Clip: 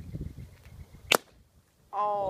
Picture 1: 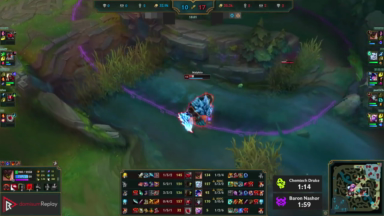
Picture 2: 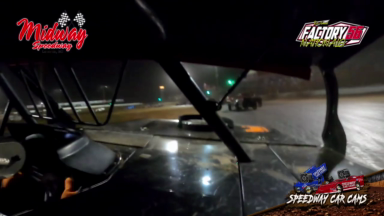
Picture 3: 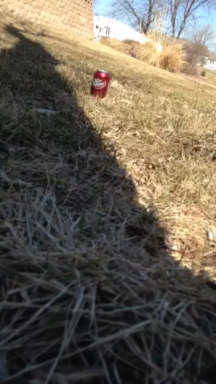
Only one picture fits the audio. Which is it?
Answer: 3